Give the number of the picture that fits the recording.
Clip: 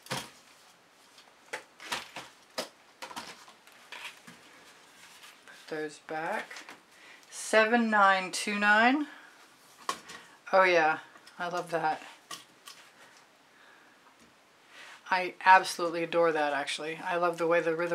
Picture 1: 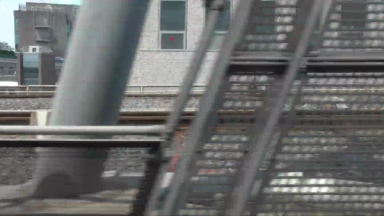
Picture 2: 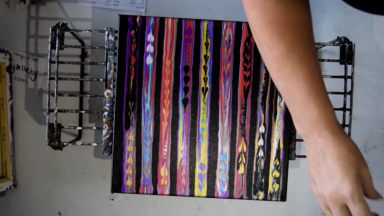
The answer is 2